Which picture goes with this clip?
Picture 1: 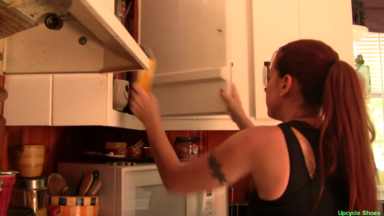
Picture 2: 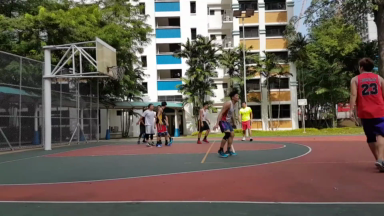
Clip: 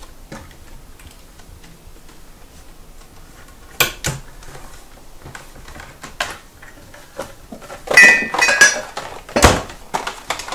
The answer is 1